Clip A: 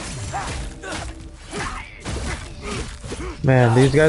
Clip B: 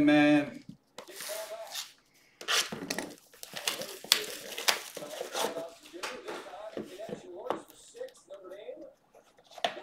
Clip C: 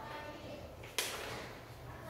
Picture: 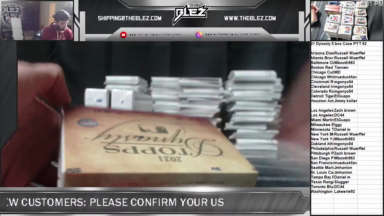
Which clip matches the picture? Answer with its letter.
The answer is B